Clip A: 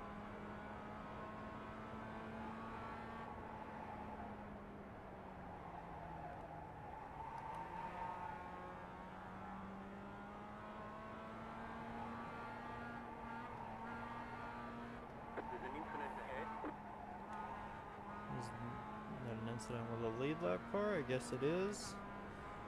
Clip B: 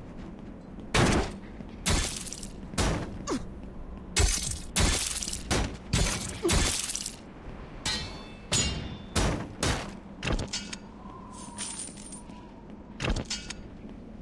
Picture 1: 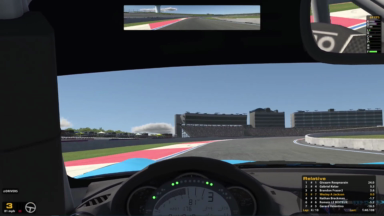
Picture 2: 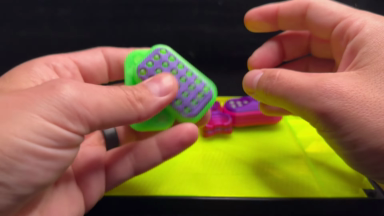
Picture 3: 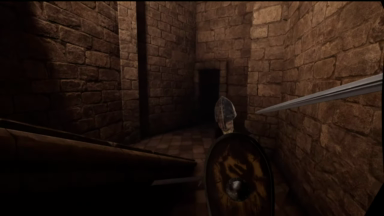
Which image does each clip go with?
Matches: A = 1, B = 3